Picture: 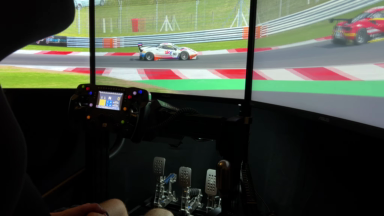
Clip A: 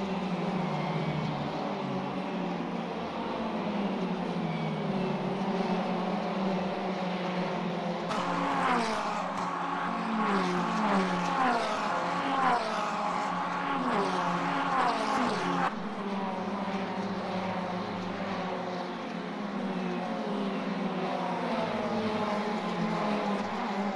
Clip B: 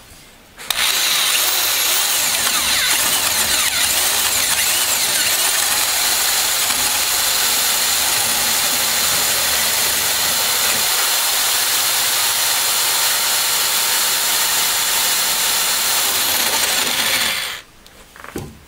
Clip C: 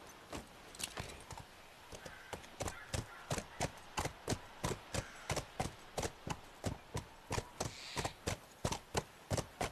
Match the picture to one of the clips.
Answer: A